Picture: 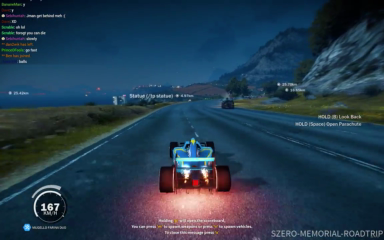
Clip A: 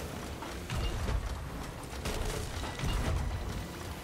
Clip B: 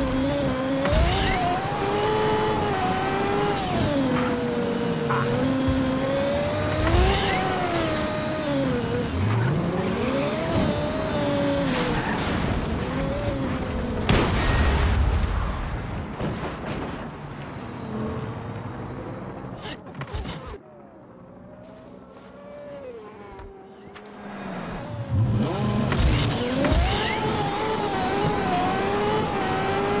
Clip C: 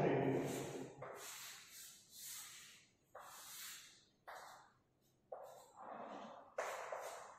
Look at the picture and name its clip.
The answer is B